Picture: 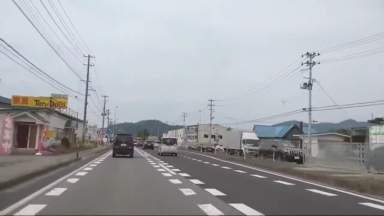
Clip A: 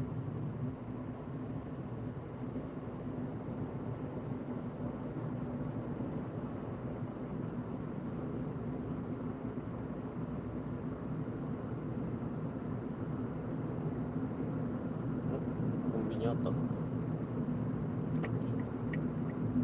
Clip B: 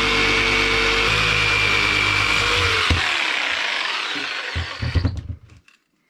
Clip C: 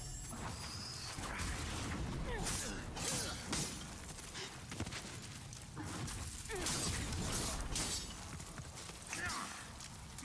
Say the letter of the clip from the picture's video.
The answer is A